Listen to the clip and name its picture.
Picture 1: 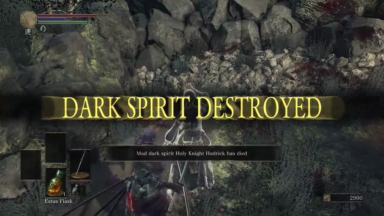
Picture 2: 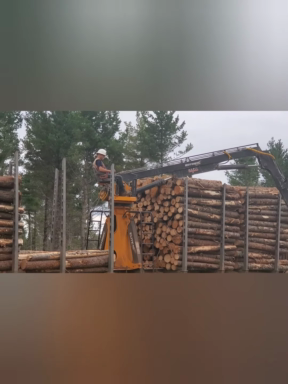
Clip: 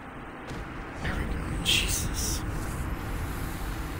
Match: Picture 1